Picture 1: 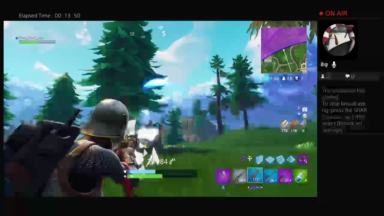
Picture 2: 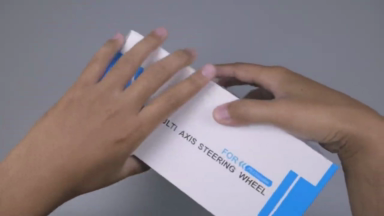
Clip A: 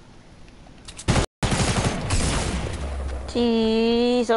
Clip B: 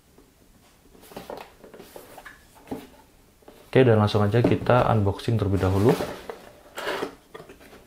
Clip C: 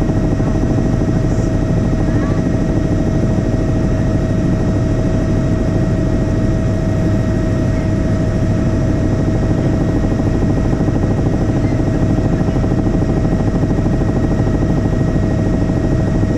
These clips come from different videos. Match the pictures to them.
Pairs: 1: A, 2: B